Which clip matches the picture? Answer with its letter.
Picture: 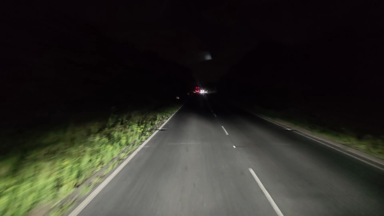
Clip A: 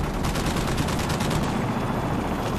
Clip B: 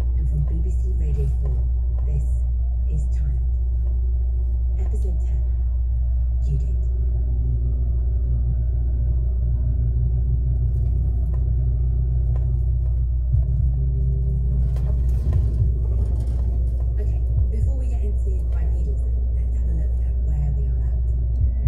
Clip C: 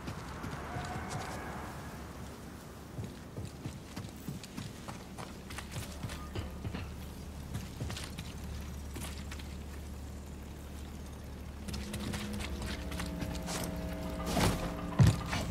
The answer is B